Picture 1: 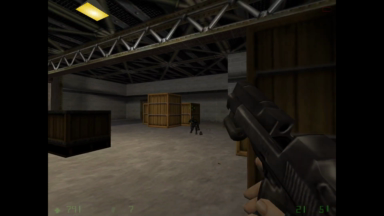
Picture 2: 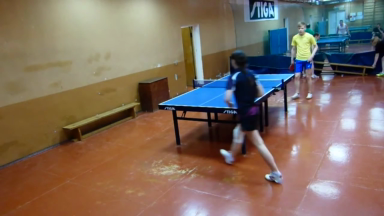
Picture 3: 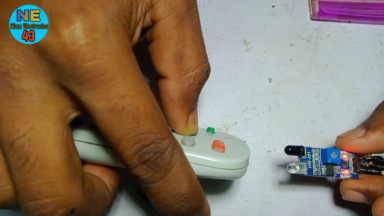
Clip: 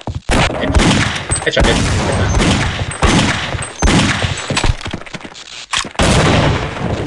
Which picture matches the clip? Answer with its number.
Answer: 1